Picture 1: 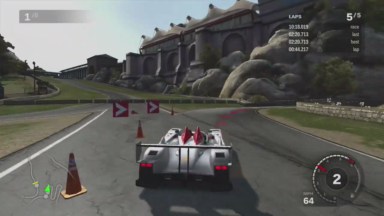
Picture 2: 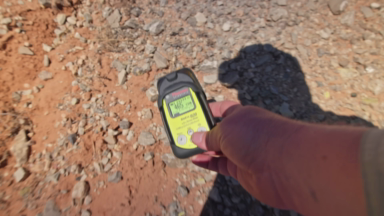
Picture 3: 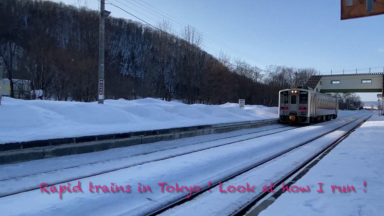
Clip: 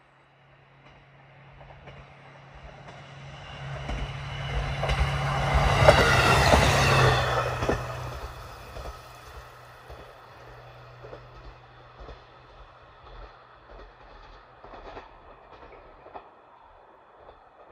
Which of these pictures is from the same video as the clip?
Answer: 3